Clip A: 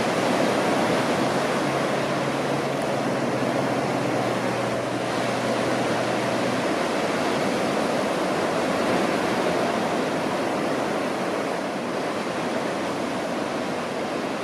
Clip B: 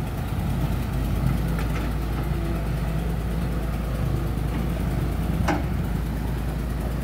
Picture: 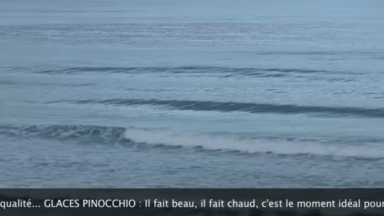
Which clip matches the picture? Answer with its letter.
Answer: A